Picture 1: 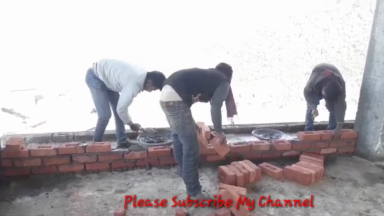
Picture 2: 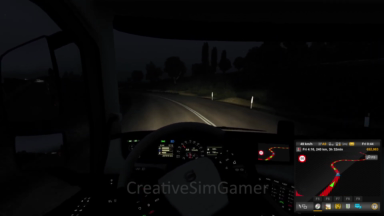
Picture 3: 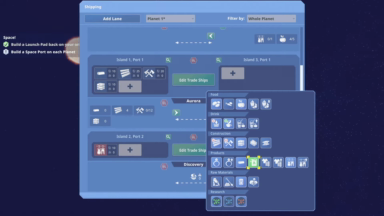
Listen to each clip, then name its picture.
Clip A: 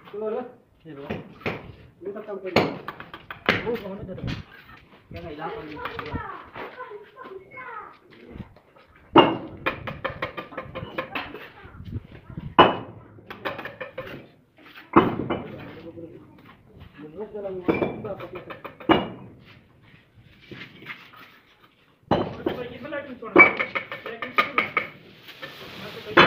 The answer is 1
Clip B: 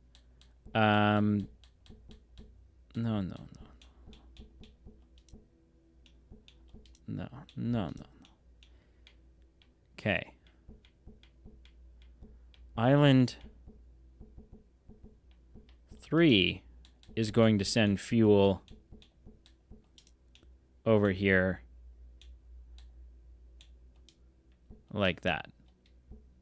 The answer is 3